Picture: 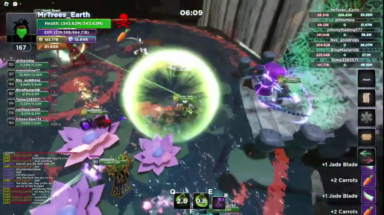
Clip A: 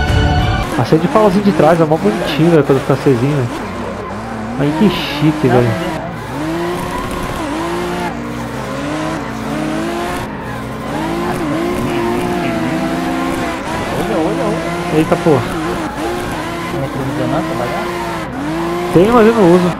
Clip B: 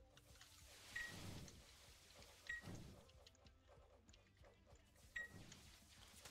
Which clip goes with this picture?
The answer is B